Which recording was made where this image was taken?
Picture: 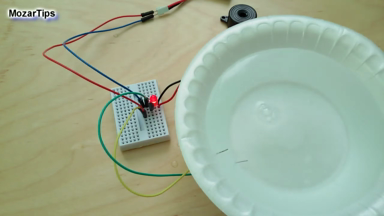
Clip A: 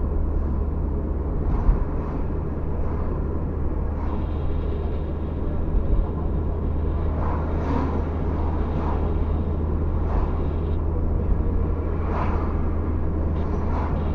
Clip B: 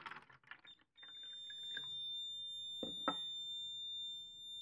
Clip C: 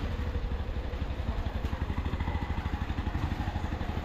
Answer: B